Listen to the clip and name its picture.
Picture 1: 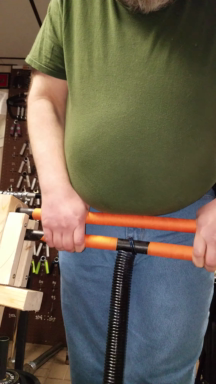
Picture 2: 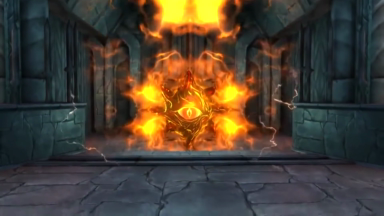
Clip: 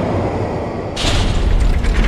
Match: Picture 2